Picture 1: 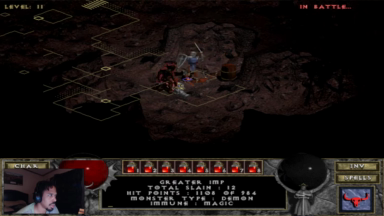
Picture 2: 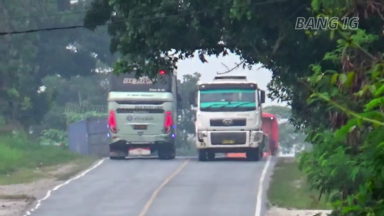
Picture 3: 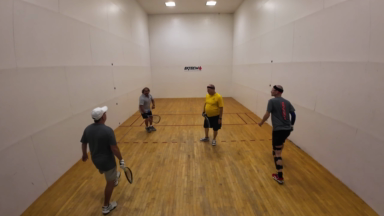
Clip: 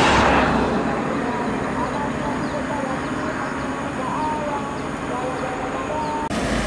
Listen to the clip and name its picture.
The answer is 2